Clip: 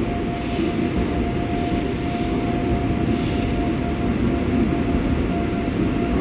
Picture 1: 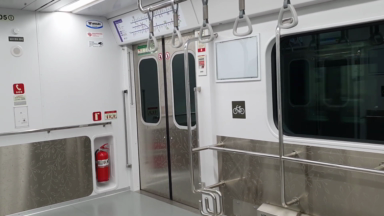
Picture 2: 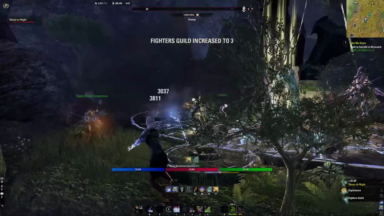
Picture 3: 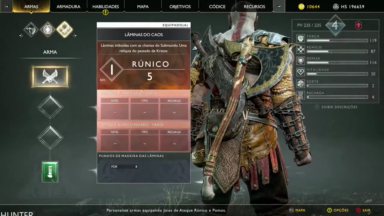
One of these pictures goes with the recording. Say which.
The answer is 1